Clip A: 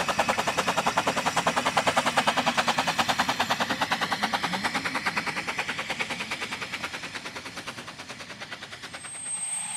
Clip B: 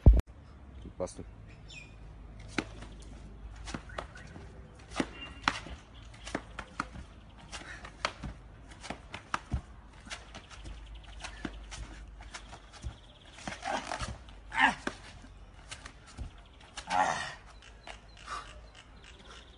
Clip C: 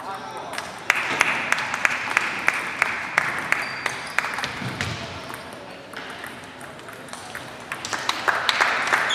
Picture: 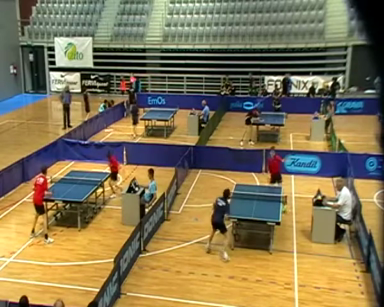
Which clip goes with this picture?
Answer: C